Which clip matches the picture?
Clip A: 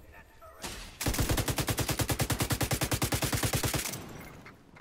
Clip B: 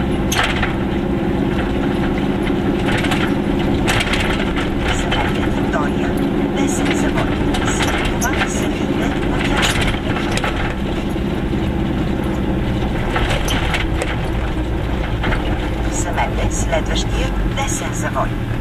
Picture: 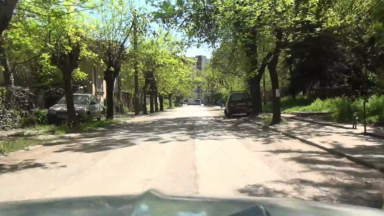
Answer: B